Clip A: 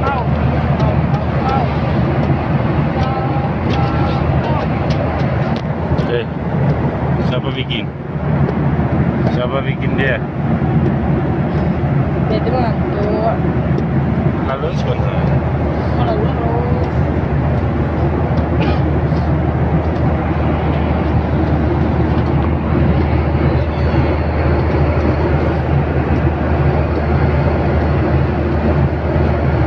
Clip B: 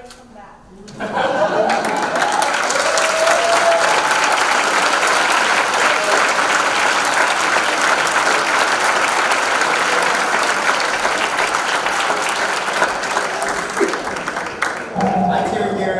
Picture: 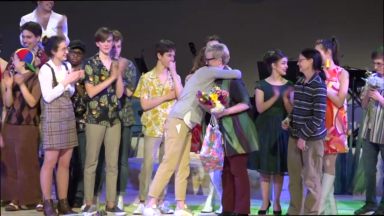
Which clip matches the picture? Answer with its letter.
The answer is B